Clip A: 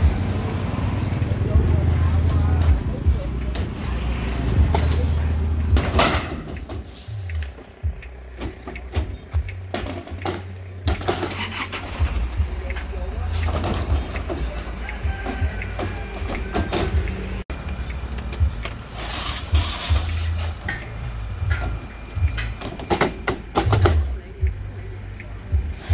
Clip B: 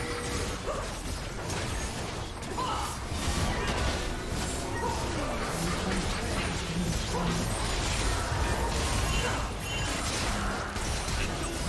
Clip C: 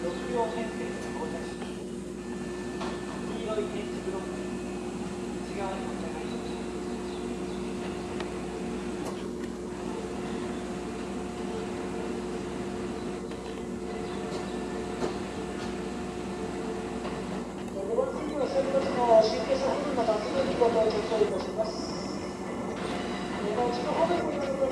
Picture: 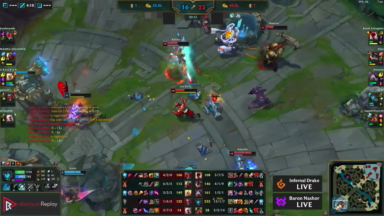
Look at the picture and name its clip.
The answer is B